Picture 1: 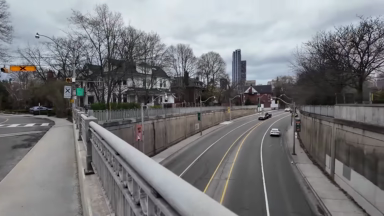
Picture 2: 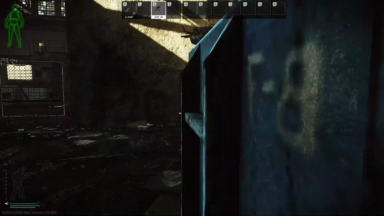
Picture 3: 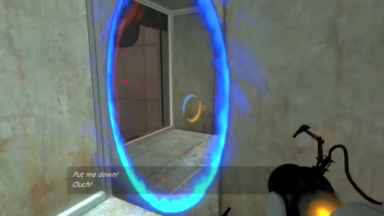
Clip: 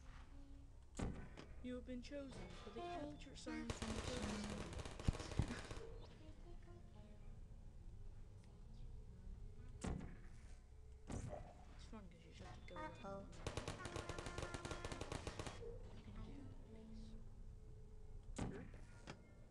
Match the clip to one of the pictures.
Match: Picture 3